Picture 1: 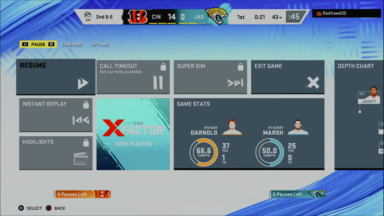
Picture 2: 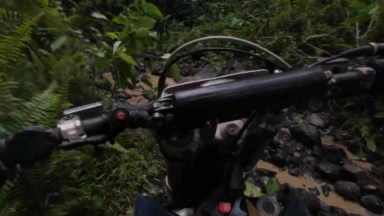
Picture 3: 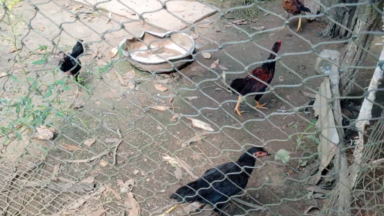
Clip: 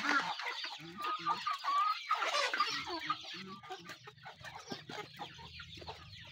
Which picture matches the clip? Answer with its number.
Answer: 3